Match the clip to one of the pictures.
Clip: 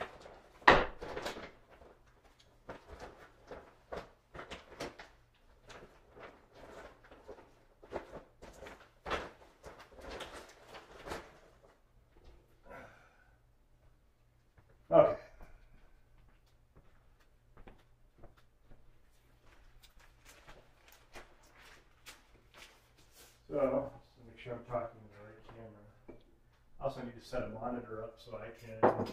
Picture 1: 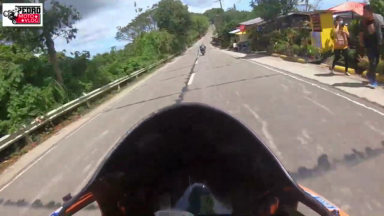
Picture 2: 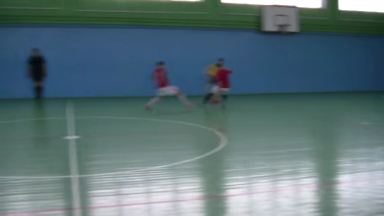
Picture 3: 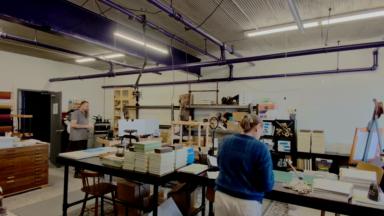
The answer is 3